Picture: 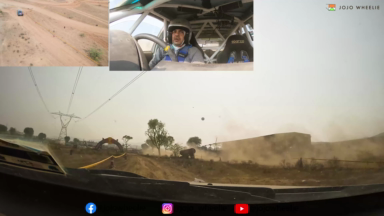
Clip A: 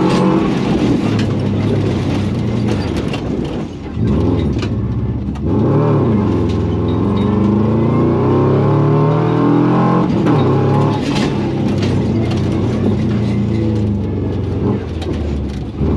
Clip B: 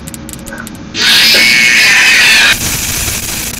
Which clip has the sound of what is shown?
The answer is A